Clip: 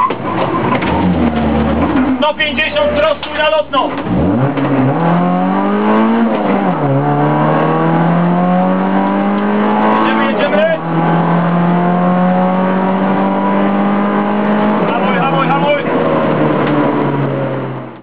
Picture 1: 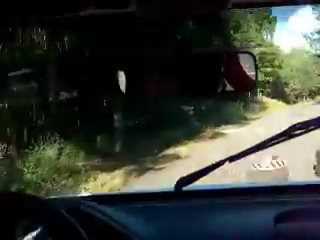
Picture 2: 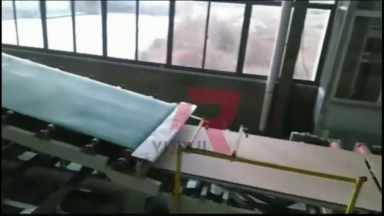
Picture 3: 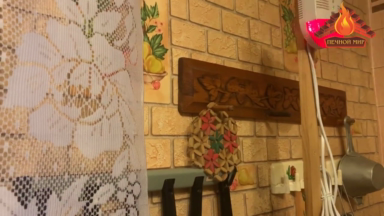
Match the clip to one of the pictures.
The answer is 1